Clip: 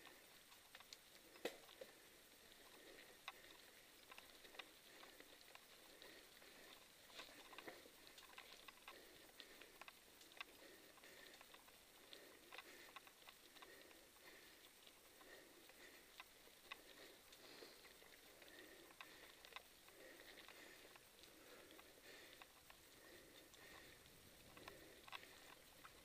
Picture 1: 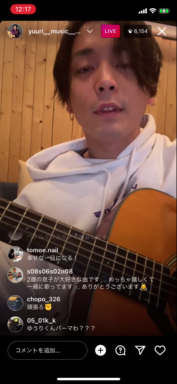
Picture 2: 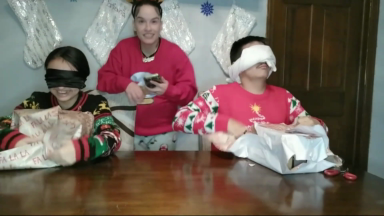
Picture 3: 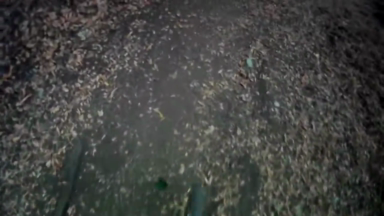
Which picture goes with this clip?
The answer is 3